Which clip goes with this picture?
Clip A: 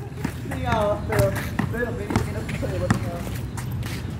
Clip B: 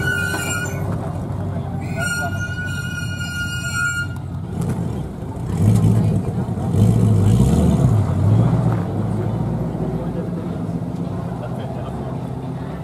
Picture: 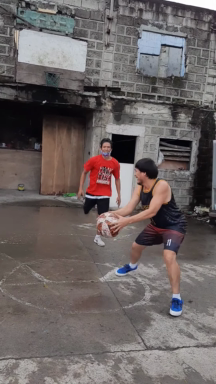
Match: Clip A